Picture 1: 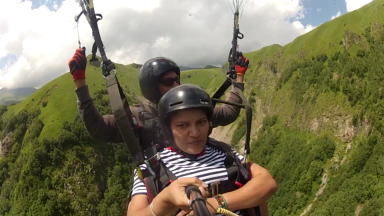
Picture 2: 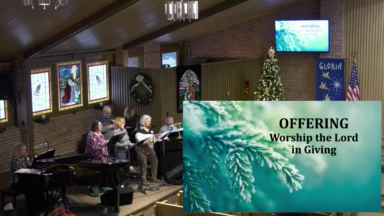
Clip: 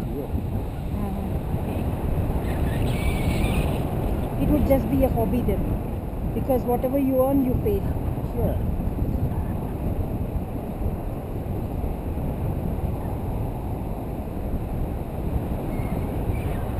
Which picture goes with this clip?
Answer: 1